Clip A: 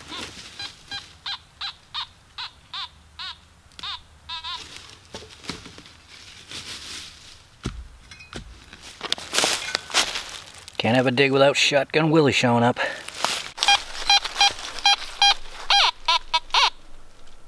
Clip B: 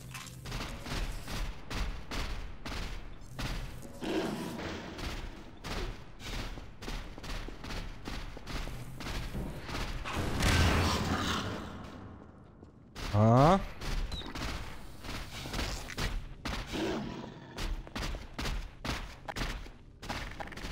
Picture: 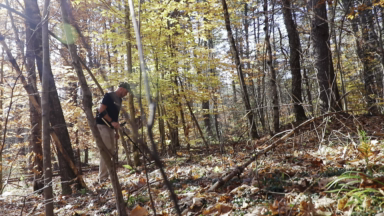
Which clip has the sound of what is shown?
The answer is A